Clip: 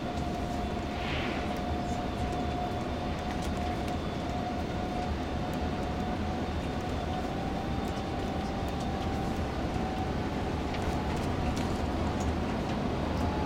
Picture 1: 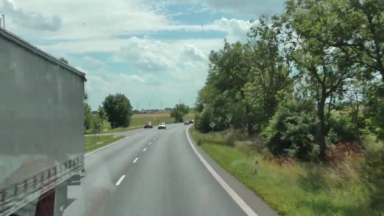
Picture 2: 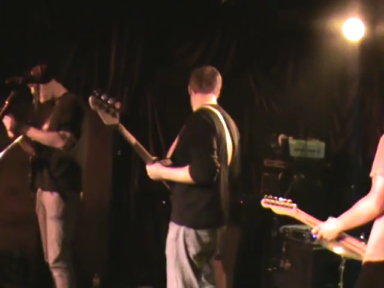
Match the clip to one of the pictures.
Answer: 1